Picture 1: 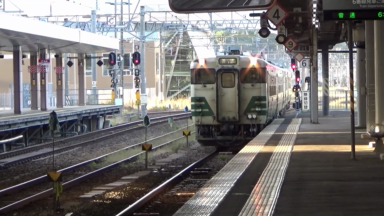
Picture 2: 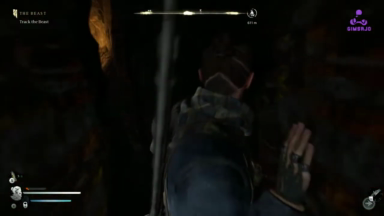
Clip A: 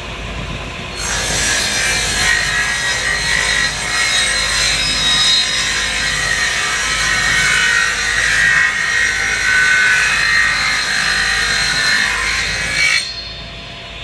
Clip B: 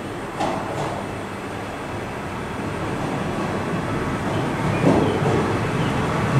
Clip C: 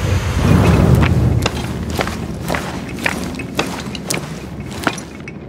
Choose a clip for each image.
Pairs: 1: B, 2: C